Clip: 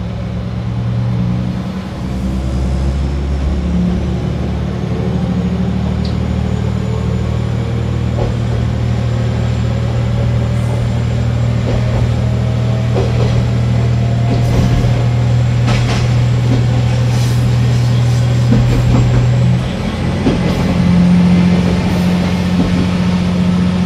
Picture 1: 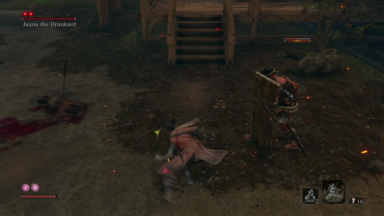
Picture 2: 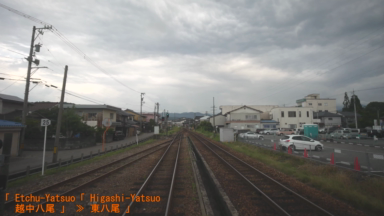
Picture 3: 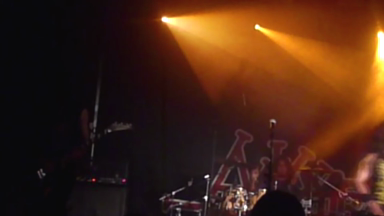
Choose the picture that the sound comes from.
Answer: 2